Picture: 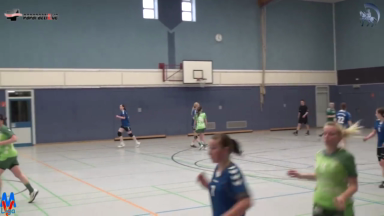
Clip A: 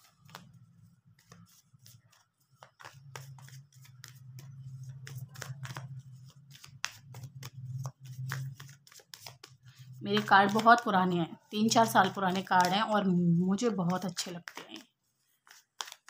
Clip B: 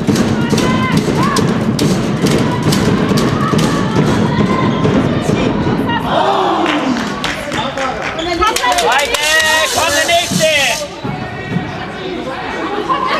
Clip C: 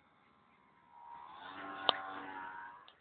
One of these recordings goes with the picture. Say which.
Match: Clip B